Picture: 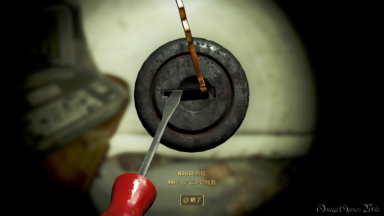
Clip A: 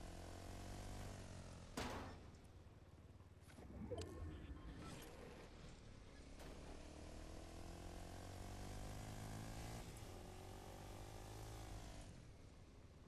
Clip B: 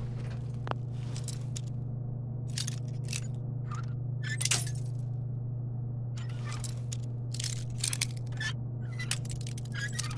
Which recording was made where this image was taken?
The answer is B